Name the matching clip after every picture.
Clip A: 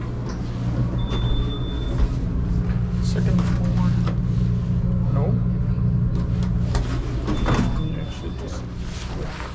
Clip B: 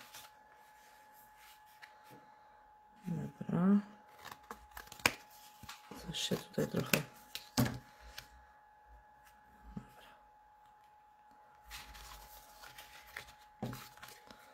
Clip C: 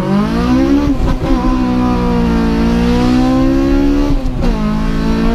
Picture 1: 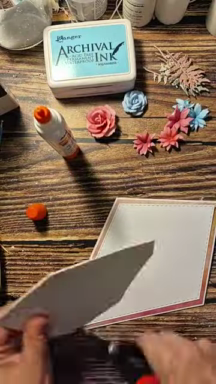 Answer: B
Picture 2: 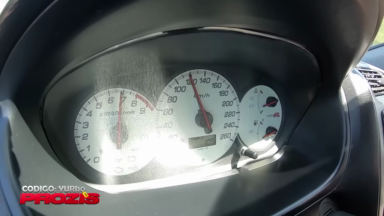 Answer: C